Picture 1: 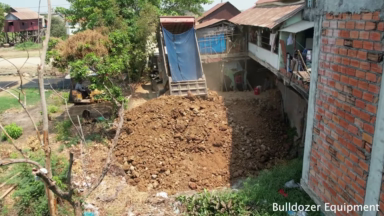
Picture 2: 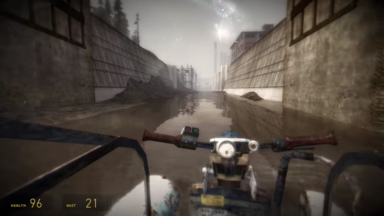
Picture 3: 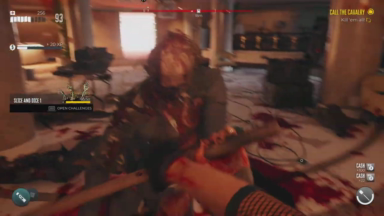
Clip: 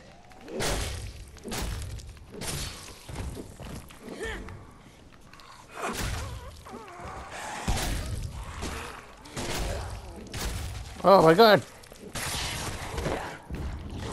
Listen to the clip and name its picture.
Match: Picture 3